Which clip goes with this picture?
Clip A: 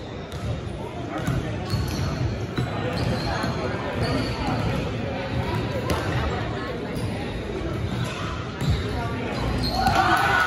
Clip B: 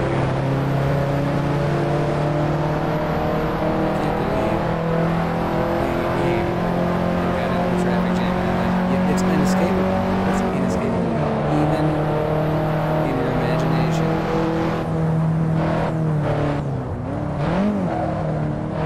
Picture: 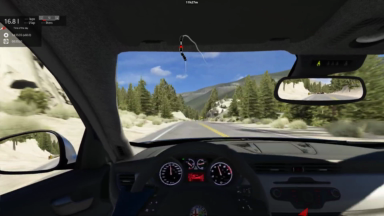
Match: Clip B